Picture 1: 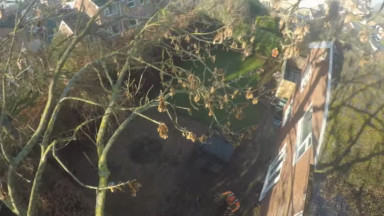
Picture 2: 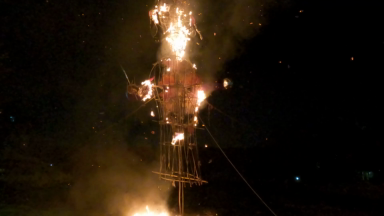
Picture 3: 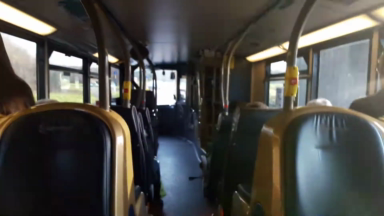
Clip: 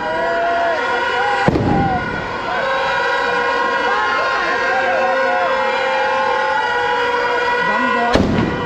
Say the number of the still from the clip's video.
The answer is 2